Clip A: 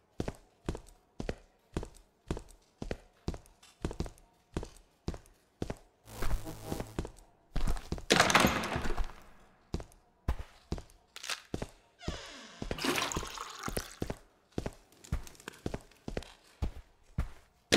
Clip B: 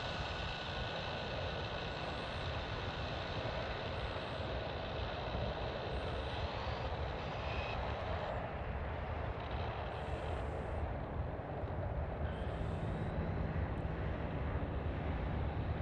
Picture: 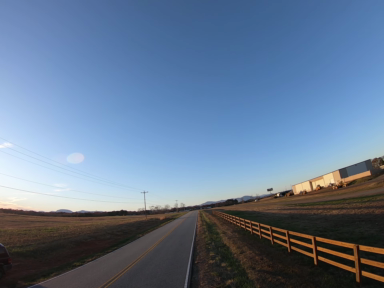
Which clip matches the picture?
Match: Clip B